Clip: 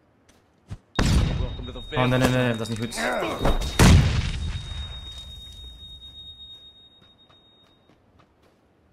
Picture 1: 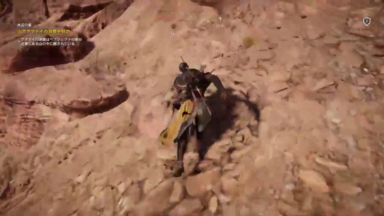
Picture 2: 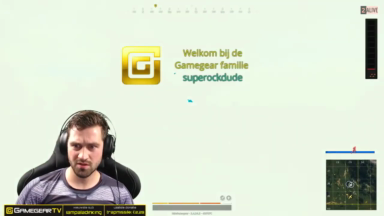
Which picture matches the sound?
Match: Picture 2